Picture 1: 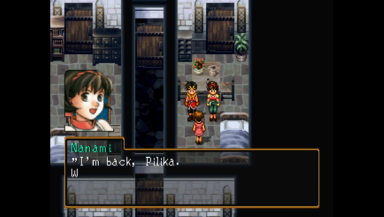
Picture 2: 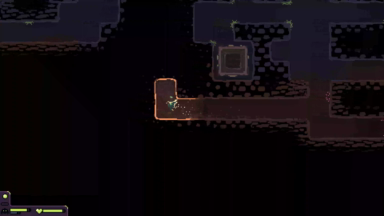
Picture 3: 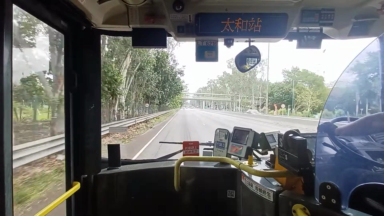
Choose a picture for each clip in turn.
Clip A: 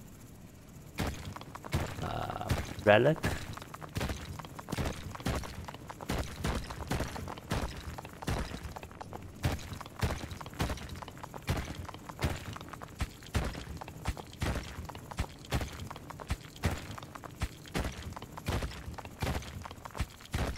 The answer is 2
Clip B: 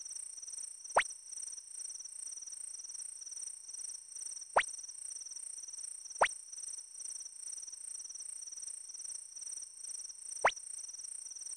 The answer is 1